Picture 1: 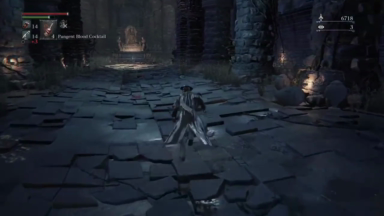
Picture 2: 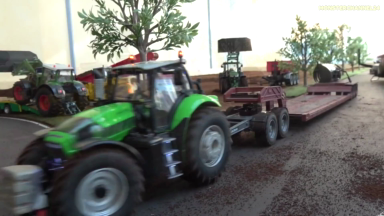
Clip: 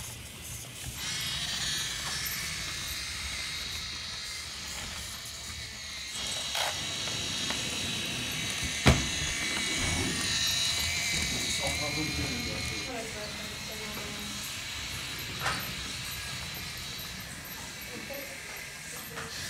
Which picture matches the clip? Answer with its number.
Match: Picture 2